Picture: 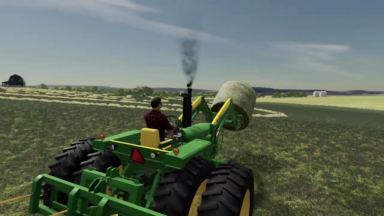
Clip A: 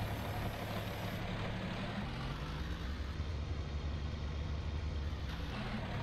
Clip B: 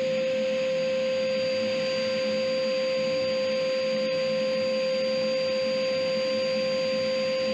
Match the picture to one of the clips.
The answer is A